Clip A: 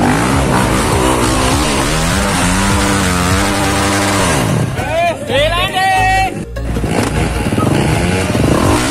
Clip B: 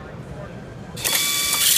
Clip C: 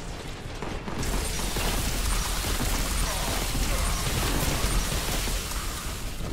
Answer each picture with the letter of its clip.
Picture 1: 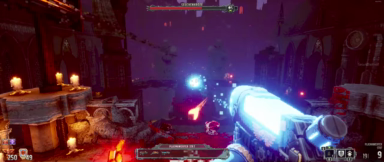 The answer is C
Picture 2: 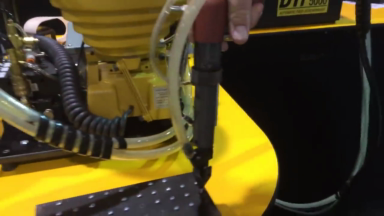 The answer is B